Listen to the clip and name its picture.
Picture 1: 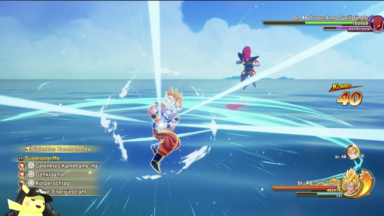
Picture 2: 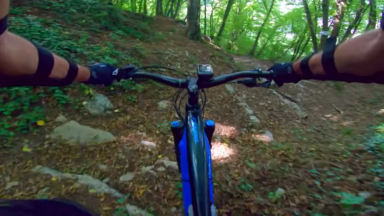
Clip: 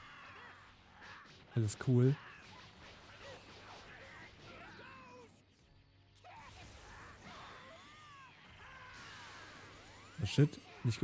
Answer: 1